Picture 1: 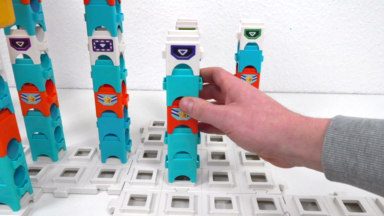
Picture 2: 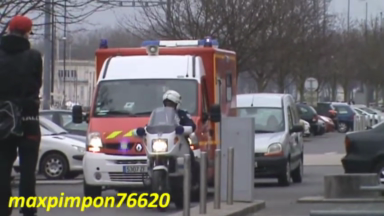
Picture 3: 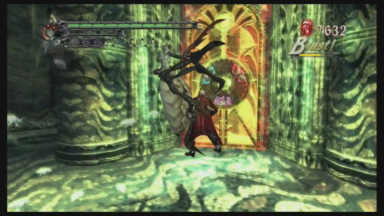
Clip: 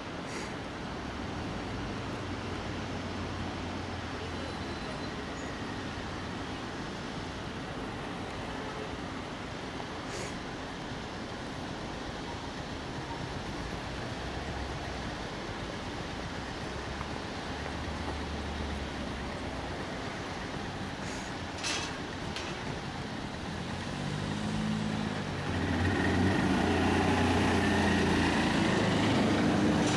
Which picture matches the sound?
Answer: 2